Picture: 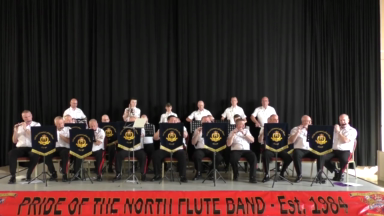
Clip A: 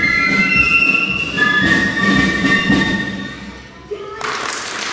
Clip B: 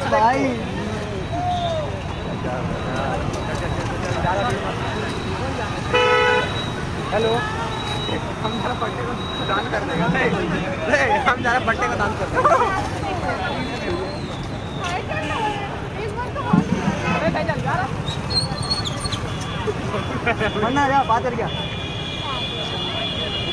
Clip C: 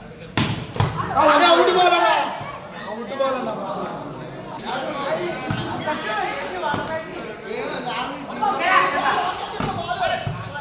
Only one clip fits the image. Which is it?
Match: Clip A